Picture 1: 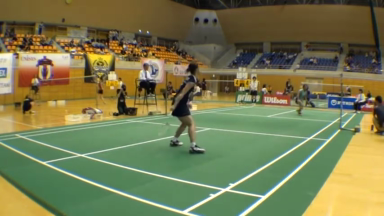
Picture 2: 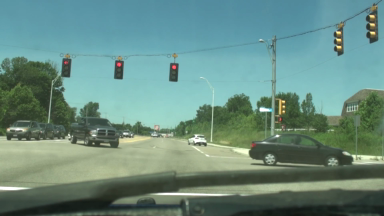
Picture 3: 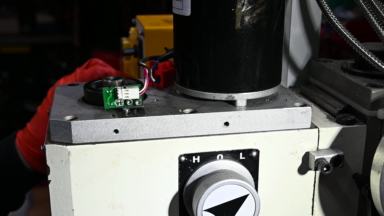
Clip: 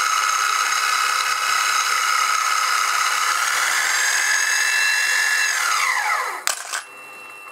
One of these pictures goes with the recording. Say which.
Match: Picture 3